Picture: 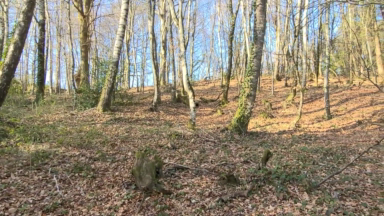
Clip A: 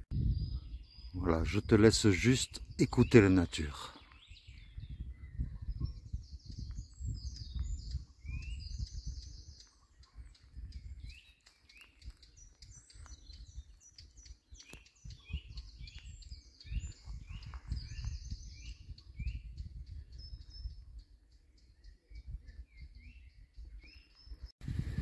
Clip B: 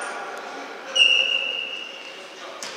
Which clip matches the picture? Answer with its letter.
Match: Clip A